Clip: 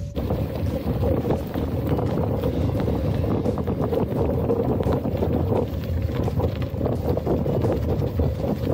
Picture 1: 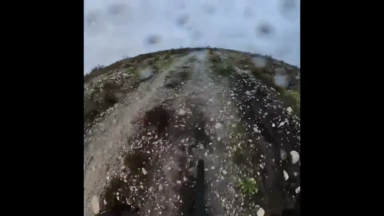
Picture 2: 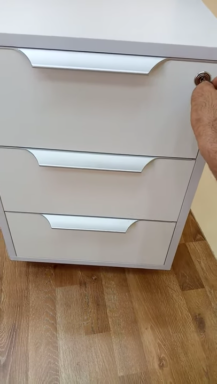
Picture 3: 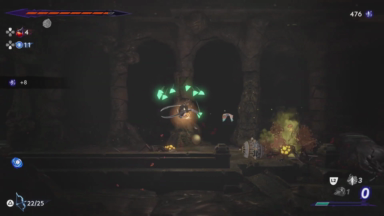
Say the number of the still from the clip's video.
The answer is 1